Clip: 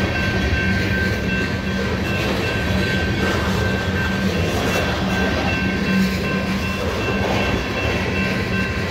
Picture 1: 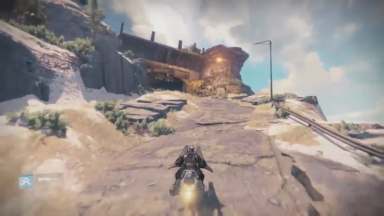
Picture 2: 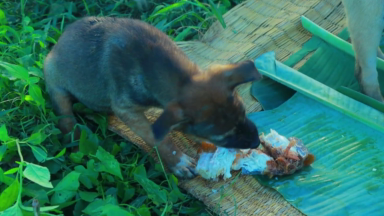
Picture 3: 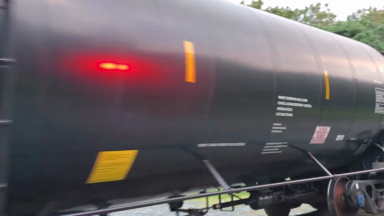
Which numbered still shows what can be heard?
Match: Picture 3